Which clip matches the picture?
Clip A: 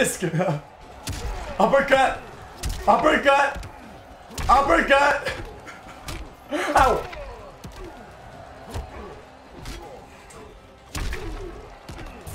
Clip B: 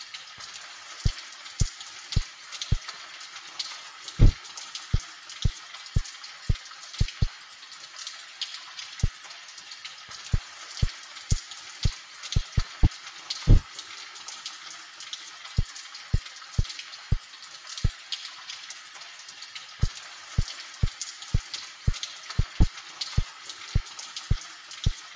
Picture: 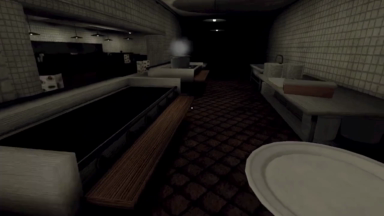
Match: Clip B